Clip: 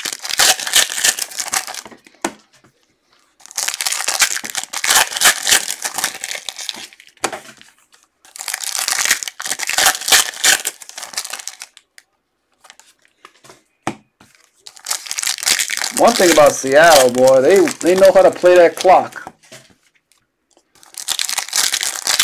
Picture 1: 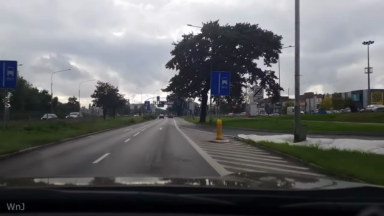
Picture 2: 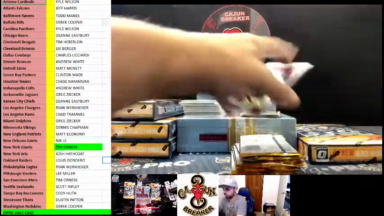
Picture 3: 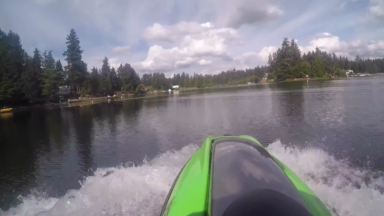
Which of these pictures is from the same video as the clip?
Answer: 2